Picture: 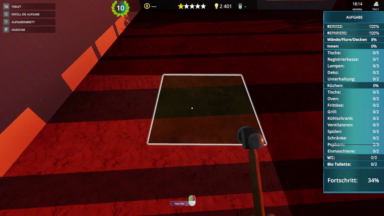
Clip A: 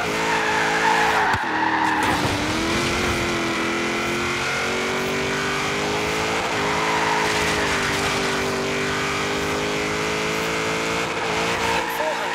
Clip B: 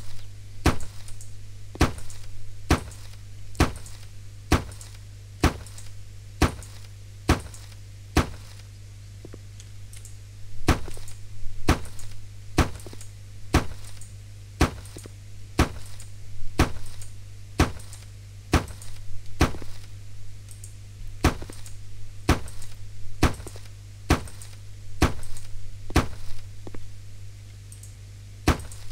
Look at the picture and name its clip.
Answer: B